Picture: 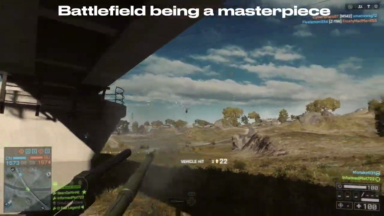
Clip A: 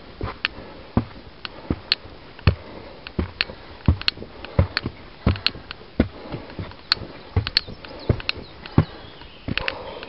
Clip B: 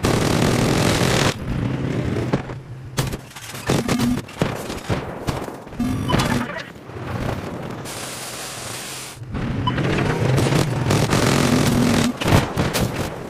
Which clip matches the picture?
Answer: B